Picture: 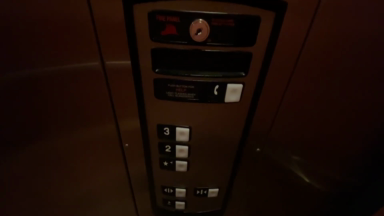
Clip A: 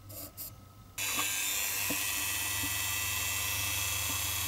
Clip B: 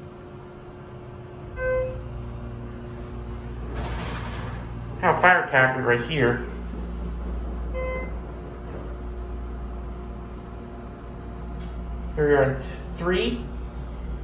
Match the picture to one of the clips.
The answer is B